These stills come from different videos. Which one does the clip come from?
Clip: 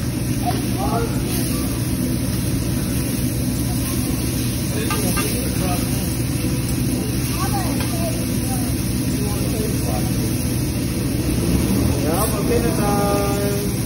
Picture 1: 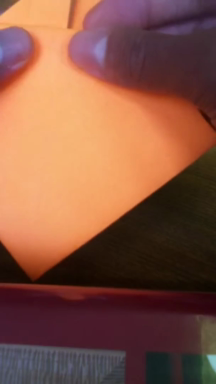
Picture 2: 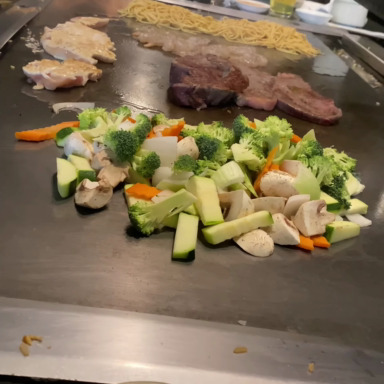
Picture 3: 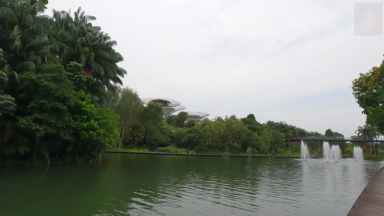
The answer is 2